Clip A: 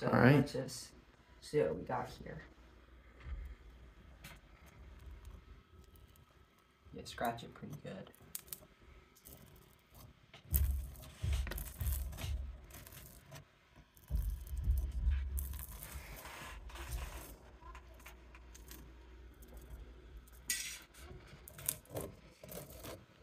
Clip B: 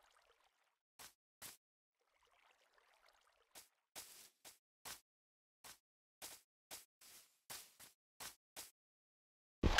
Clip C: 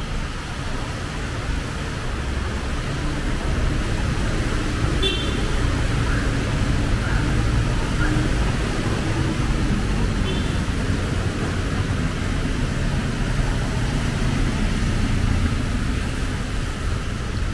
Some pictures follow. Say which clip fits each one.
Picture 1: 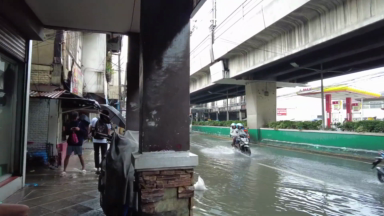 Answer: C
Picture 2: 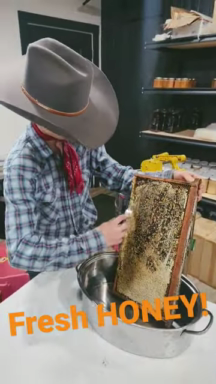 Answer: A